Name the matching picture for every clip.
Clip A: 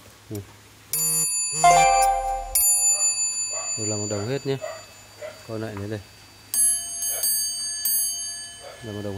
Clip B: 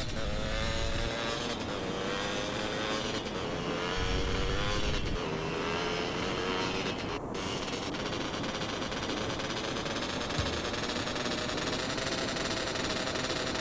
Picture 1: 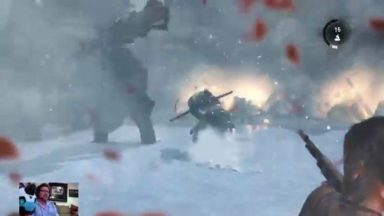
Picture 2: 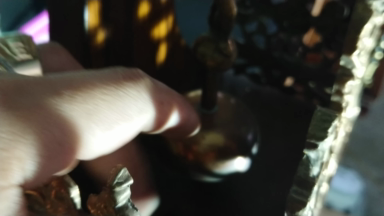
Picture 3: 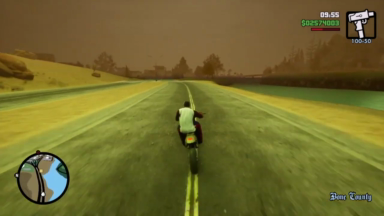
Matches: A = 2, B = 3